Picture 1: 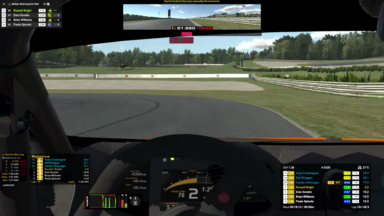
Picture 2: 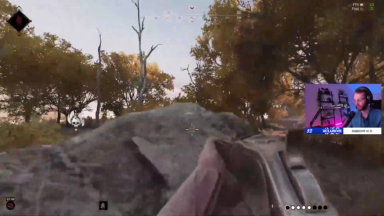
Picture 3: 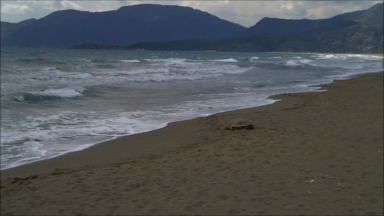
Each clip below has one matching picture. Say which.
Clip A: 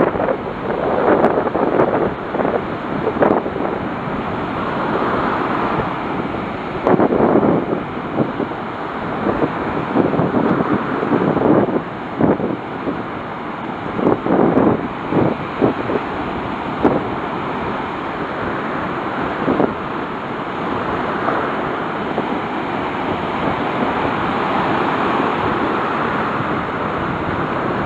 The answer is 3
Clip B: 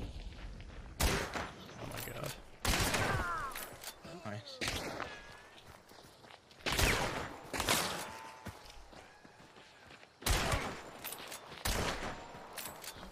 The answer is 2